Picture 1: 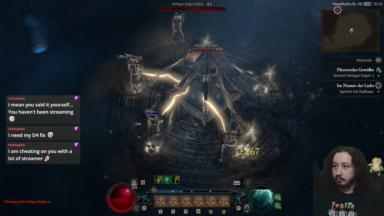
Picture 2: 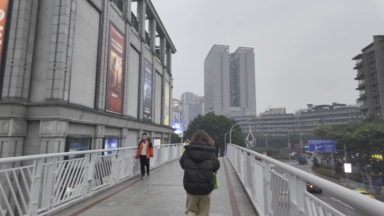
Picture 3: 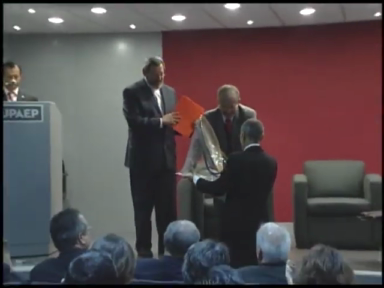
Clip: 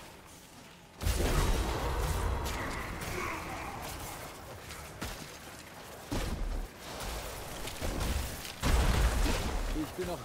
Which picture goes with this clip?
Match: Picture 1